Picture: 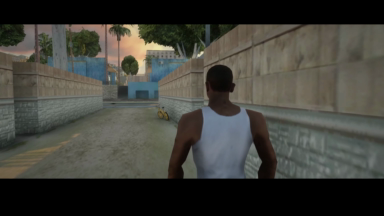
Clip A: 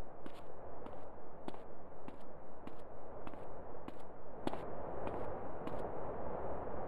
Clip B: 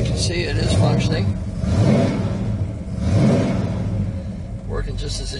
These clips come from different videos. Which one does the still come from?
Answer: A